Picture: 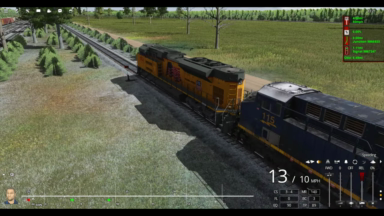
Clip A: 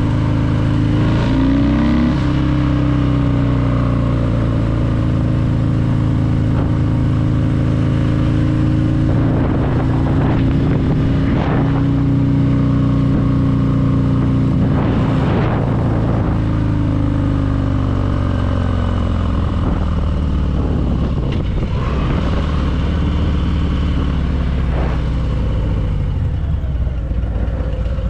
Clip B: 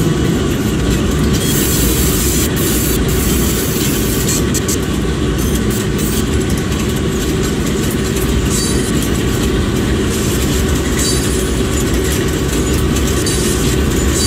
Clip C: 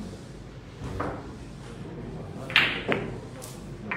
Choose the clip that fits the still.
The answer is B